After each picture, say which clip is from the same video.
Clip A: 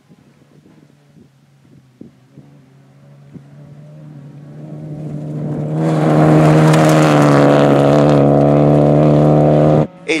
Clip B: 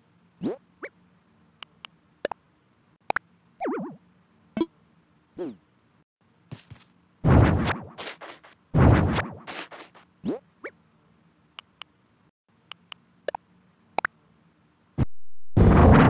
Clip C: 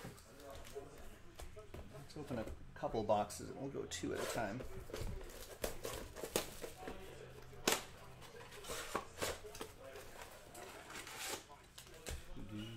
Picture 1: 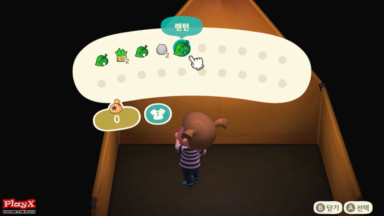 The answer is B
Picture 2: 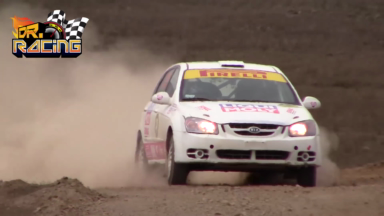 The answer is A